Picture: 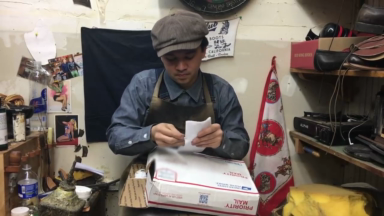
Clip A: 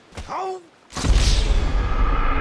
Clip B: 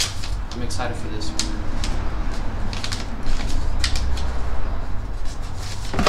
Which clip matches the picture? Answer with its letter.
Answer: B